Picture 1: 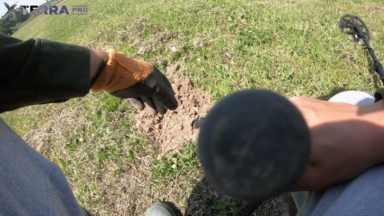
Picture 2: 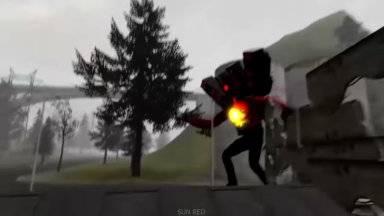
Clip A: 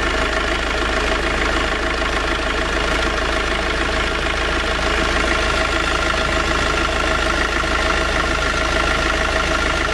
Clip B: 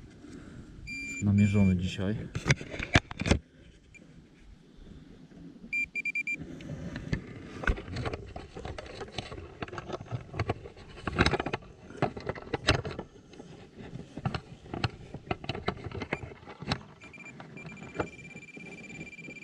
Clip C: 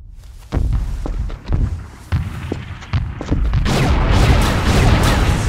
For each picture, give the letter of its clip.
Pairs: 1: B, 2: C